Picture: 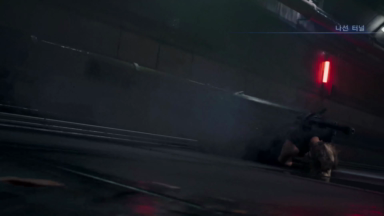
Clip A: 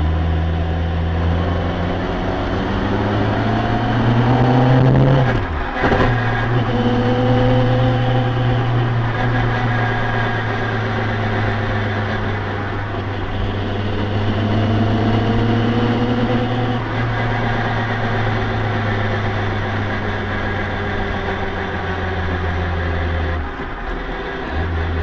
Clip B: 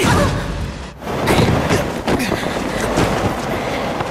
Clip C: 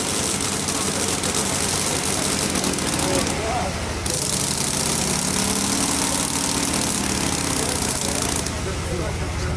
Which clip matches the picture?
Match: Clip B